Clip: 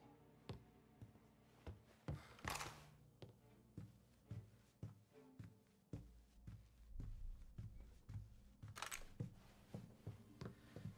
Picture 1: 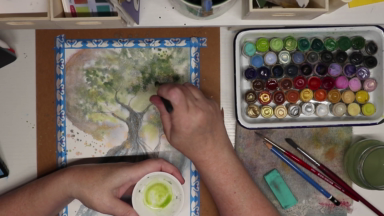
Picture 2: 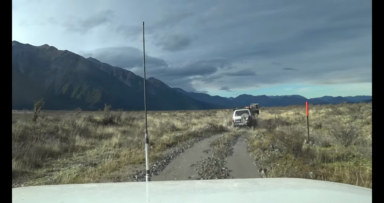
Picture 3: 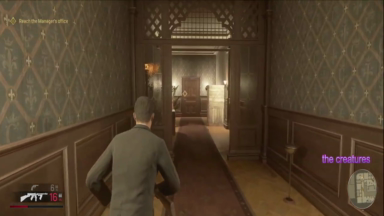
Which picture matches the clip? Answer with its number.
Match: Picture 3